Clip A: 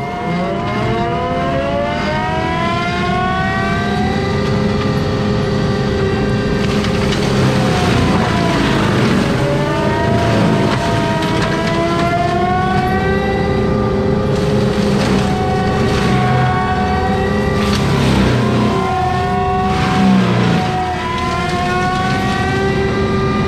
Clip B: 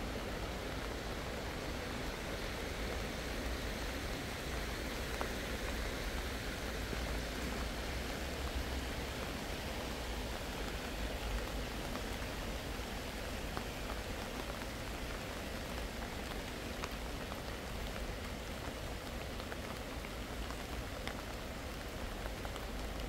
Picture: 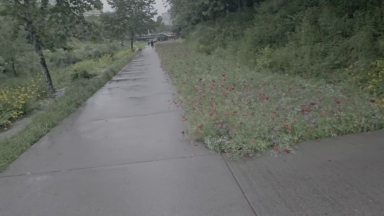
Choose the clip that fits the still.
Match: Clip B